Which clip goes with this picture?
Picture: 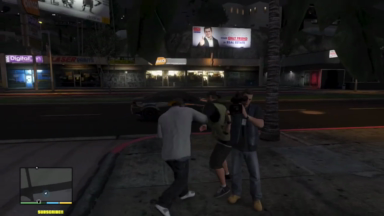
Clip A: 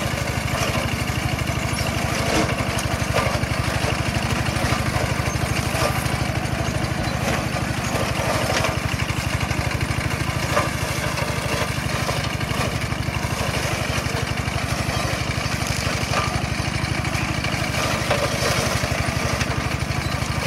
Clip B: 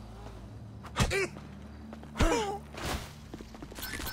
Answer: B